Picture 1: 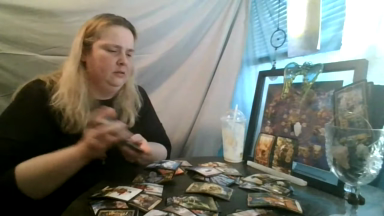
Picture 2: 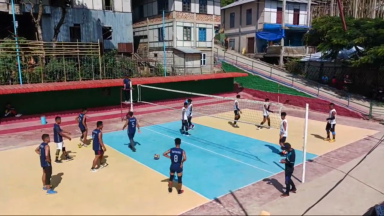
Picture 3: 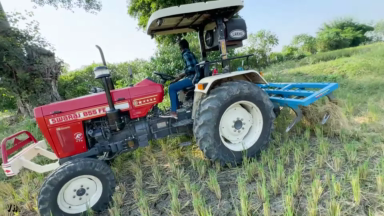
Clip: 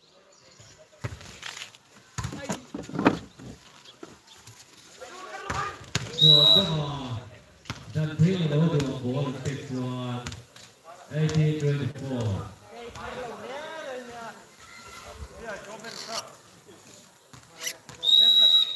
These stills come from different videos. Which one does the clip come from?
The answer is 2